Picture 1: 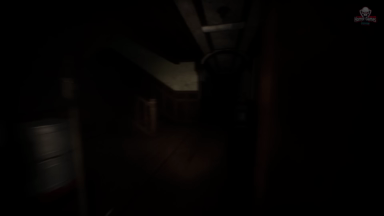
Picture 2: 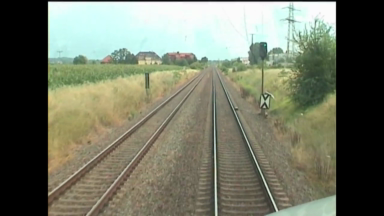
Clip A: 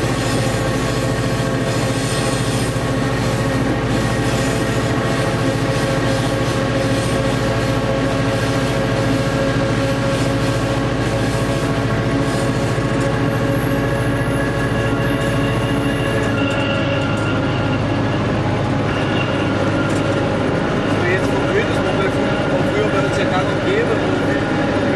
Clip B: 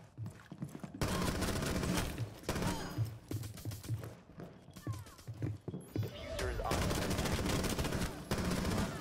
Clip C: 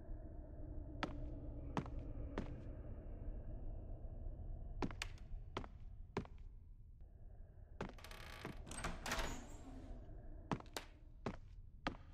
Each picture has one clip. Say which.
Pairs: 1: C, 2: A